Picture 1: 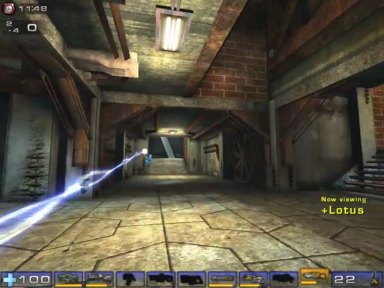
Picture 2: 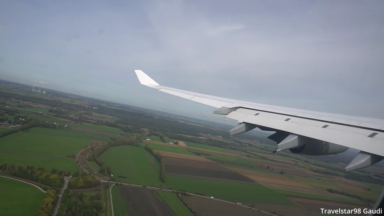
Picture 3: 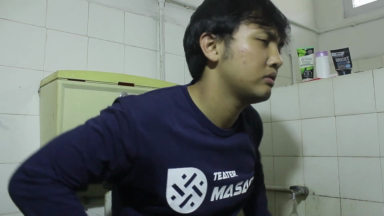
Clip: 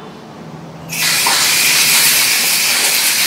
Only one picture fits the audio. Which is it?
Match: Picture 3